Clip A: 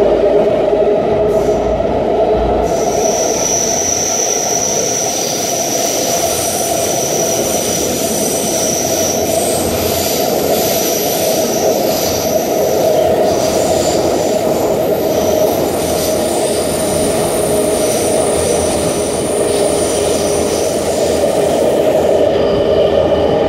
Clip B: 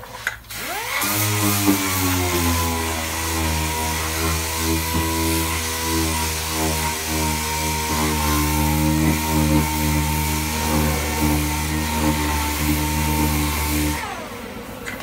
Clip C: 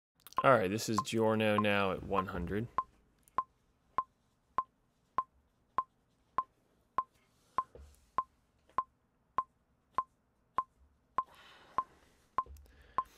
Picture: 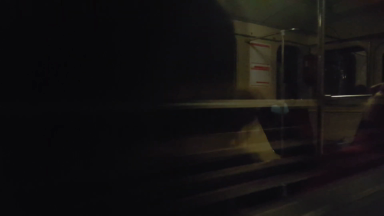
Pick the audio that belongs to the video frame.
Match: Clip A